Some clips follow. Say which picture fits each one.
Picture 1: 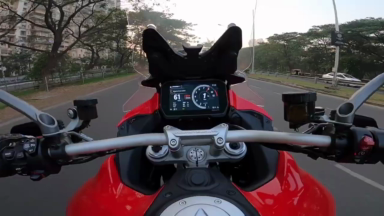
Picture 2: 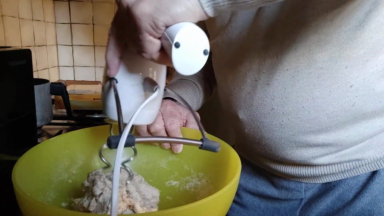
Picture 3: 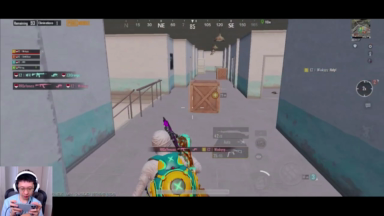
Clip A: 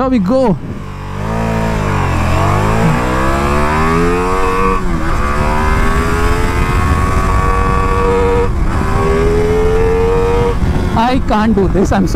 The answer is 1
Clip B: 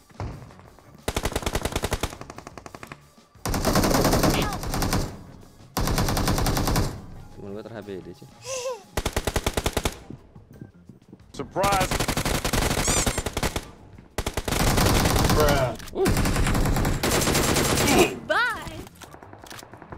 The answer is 3